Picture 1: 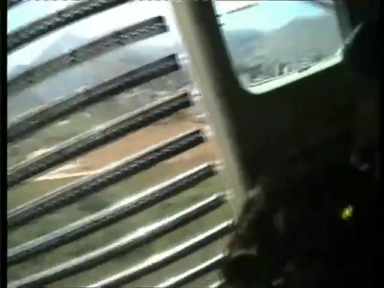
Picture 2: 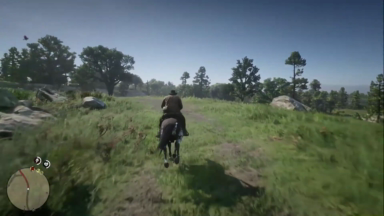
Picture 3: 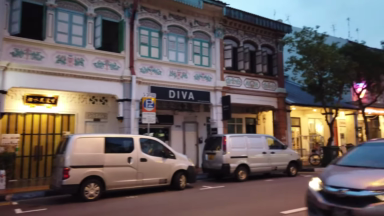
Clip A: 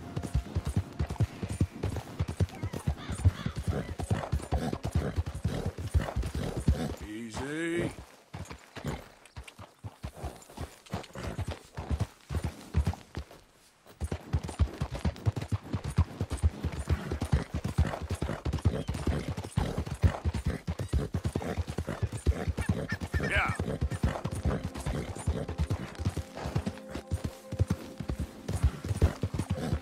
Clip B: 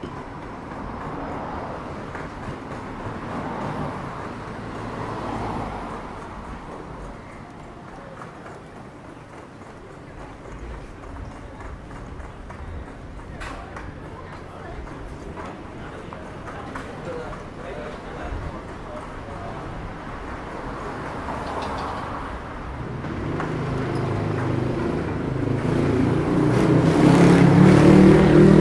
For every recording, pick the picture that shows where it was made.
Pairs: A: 2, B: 3